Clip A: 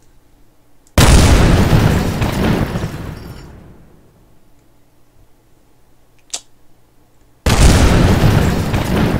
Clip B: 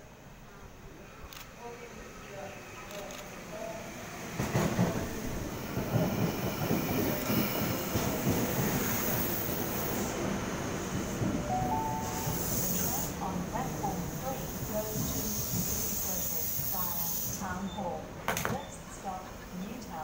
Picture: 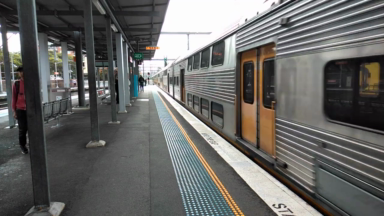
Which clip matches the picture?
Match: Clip B